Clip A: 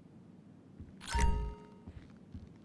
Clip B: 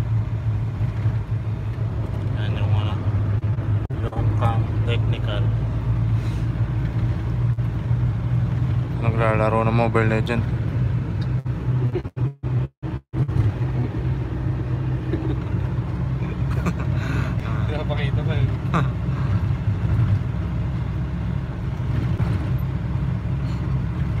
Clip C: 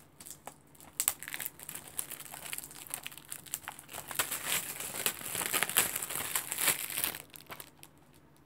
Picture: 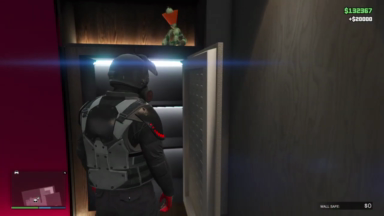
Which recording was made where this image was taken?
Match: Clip A